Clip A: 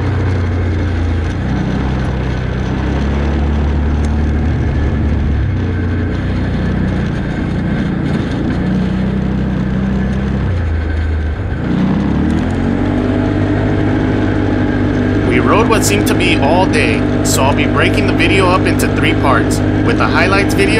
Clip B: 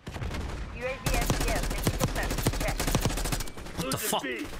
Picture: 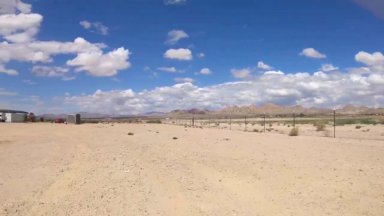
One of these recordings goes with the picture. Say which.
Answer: A